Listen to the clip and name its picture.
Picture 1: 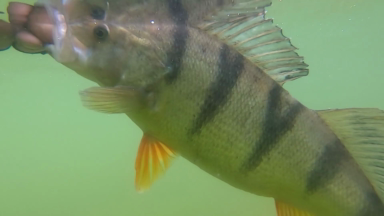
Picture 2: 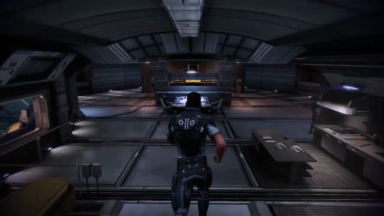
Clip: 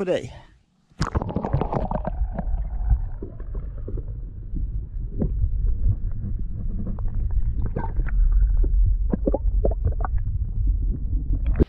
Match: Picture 1